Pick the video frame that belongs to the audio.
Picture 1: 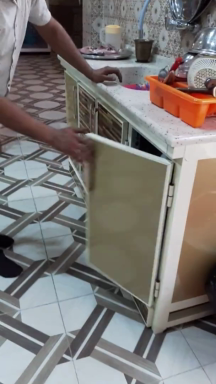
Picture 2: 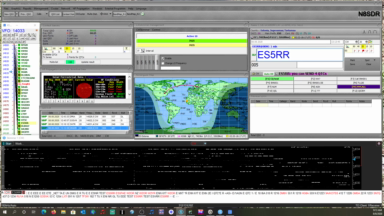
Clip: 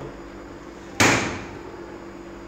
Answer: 1